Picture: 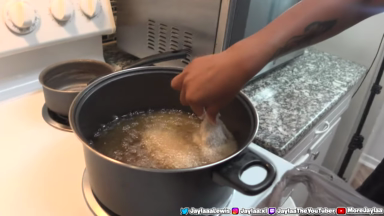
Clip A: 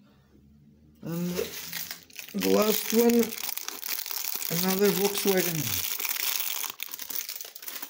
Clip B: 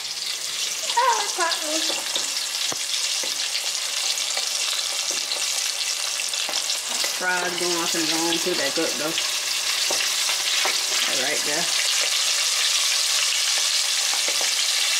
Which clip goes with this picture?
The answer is B